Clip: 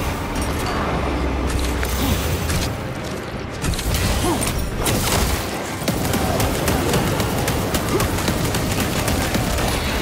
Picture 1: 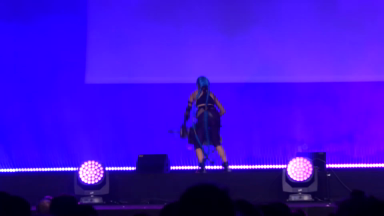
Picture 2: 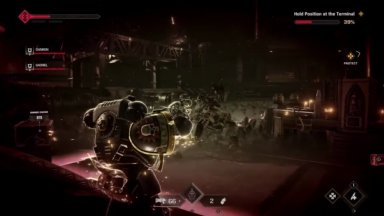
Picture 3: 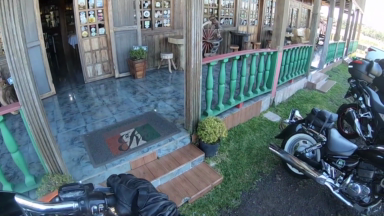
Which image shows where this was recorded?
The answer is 2